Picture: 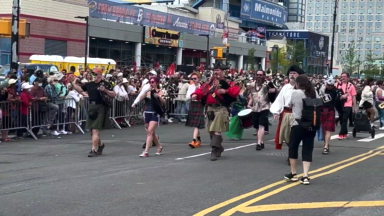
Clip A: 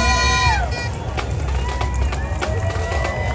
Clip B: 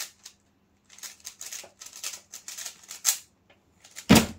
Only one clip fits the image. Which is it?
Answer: A